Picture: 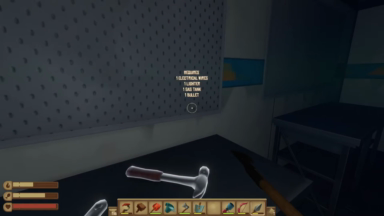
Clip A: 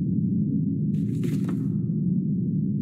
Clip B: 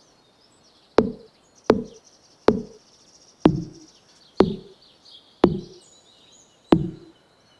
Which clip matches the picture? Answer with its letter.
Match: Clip A